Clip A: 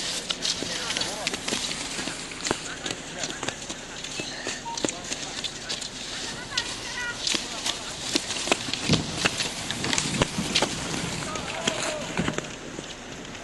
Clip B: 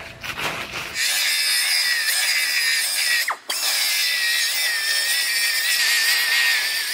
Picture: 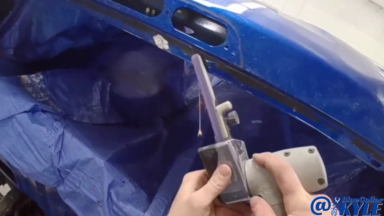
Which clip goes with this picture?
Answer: B